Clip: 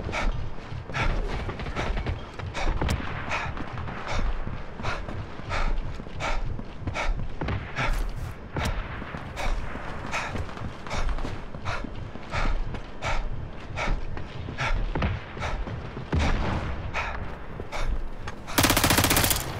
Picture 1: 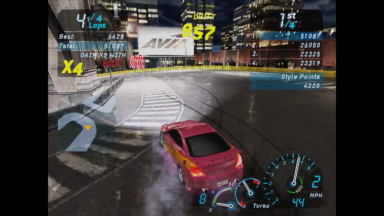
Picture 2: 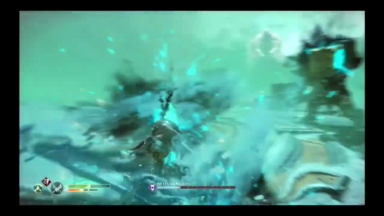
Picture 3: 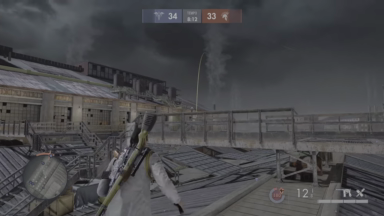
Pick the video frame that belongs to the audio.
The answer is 3